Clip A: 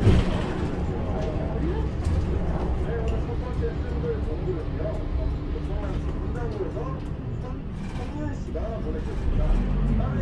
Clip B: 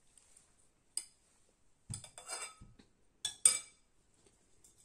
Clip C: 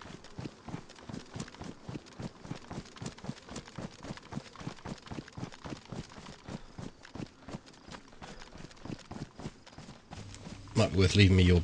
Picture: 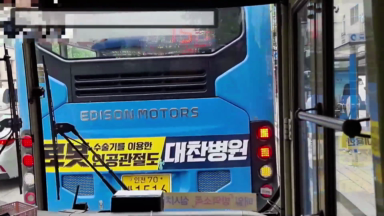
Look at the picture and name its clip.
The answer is A